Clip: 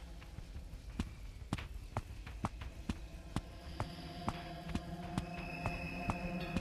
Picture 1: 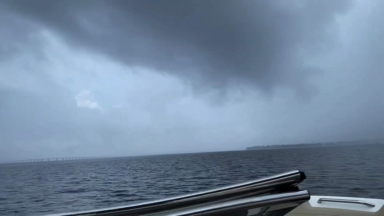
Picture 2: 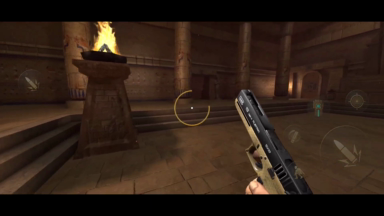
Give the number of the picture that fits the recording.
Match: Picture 2